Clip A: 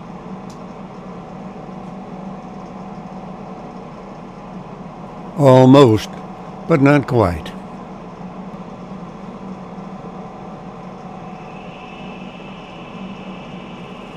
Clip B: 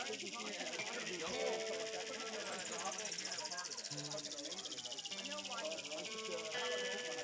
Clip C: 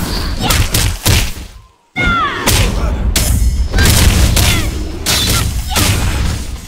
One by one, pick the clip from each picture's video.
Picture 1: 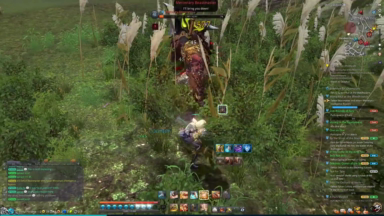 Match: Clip C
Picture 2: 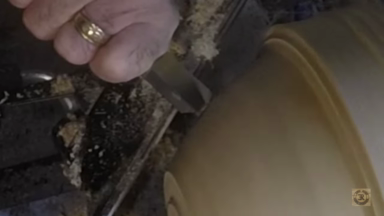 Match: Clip A